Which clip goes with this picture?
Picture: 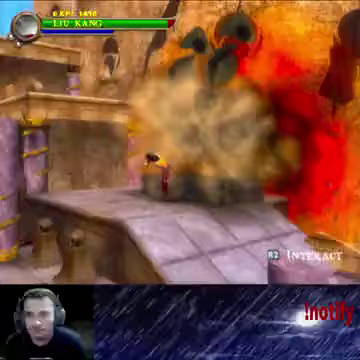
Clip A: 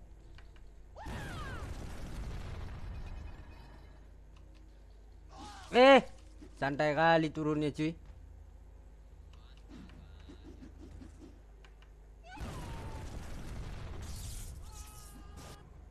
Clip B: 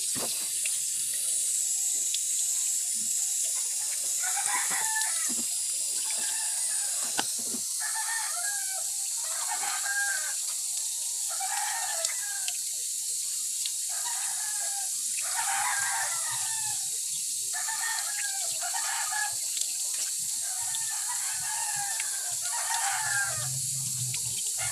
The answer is A